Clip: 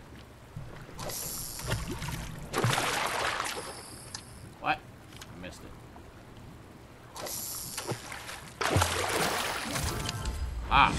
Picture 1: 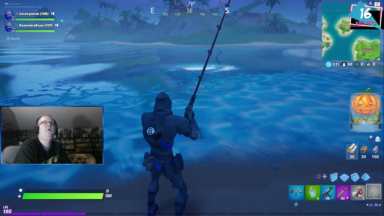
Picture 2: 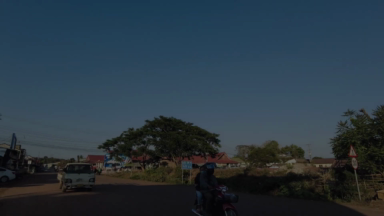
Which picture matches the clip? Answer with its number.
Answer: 1